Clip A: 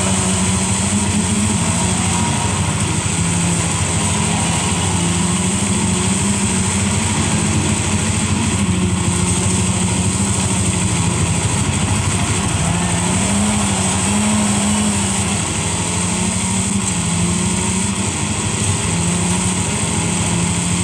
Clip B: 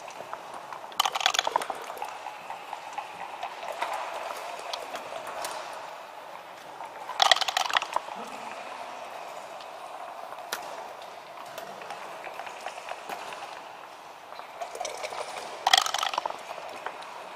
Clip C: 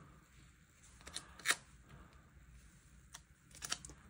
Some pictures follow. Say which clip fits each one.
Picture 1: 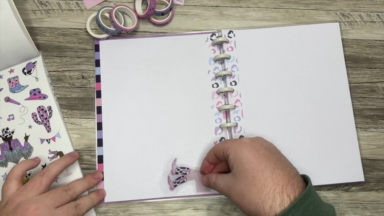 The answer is C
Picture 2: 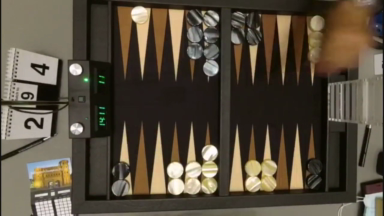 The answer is B